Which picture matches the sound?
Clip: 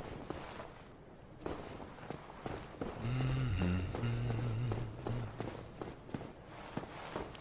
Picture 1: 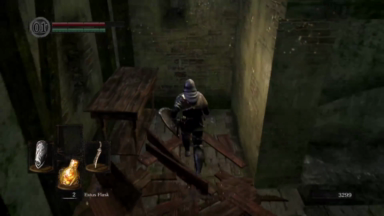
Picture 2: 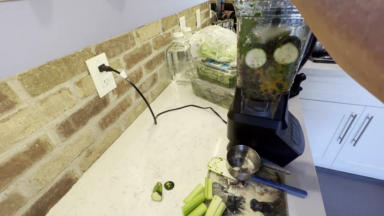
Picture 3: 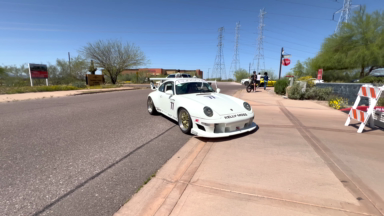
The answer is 1